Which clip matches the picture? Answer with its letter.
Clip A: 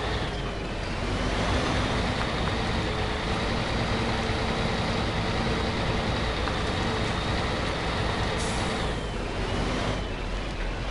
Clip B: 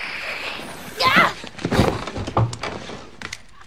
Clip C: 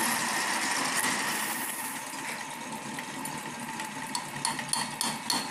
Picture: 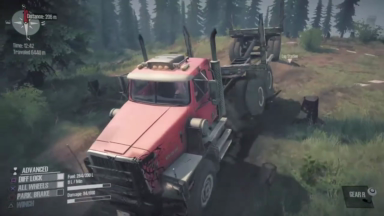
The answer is A